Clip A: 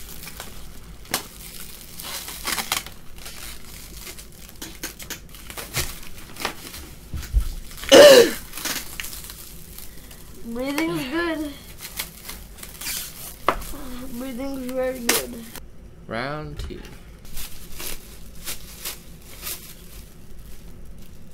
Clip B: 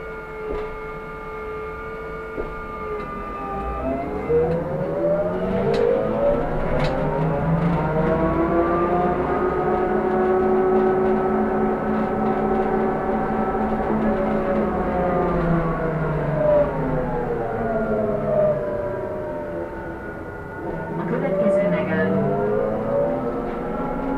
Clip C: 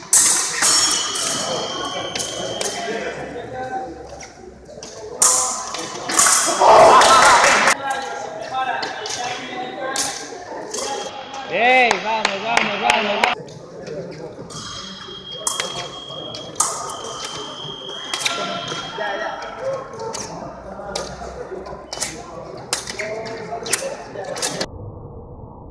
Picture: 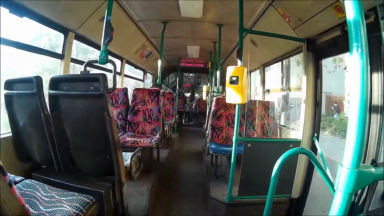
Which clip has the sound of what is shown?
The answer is B